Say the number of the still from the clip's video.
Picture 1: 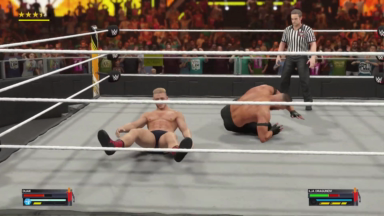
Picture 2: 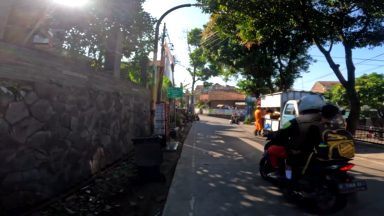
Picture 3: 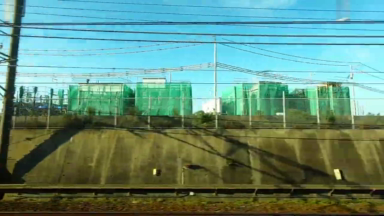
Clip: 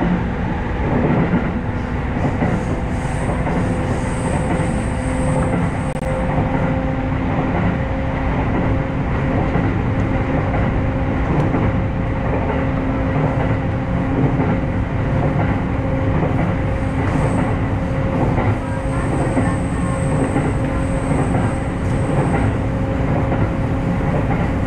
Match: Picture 3